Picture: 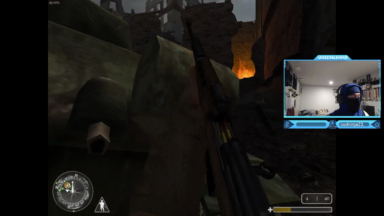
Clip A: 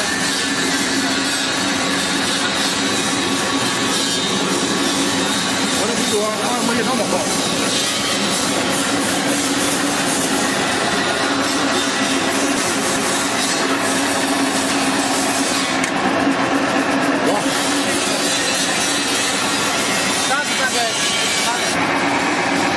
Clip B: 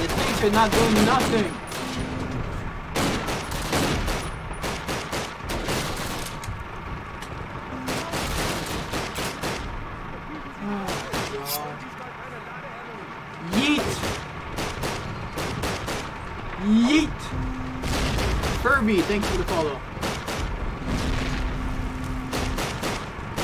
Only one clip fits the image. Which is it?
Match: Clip B